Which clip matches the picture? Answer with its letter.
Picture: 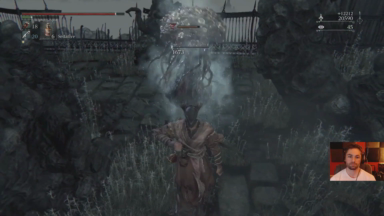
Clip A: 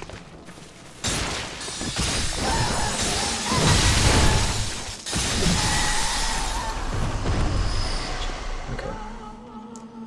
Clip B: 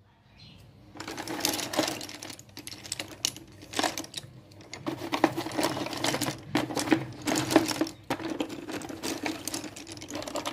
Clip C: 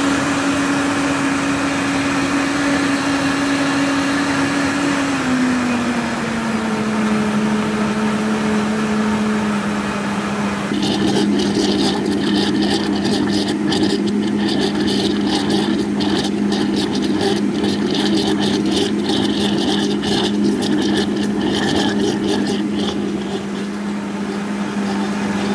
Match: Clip A